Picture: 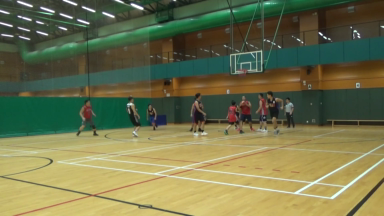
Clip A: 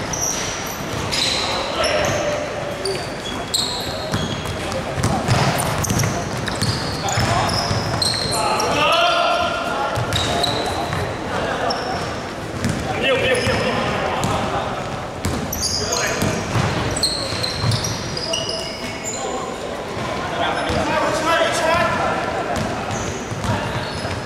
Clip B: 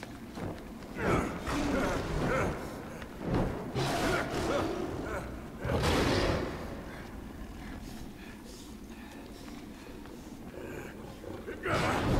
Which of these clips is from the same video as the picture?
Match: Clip A